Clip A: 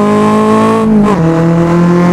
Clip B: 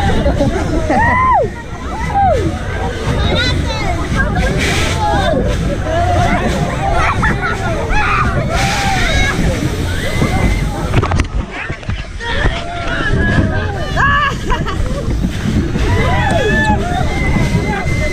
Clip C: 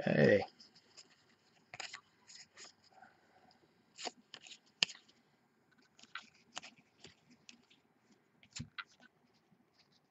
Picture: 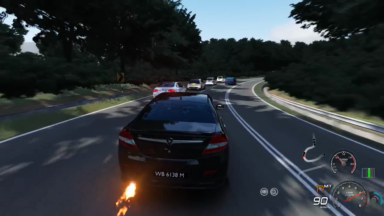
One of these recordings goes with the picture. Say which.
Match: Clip A